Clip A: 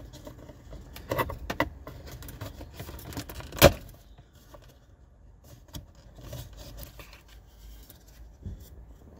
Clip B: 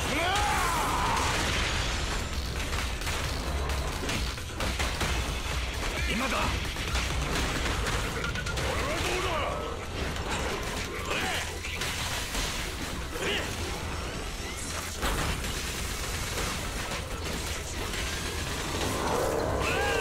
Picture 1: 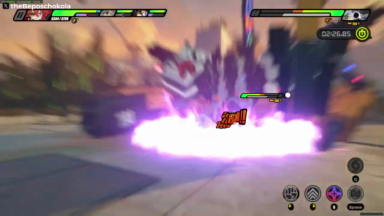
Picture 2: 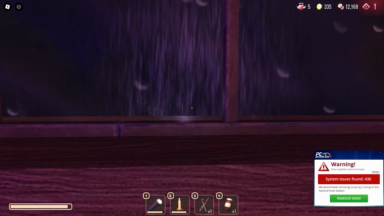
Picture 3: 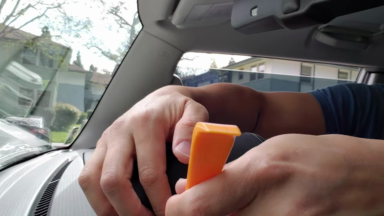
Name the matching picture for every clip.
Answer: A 3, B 1